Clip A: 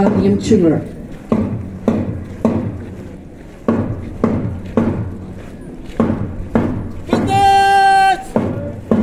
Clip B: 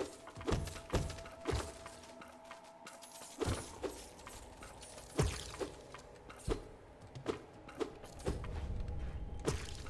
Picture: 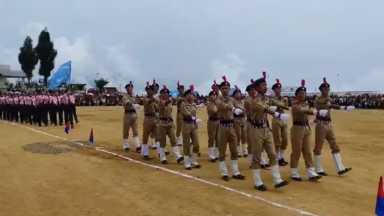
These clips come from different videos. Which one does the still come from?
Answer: A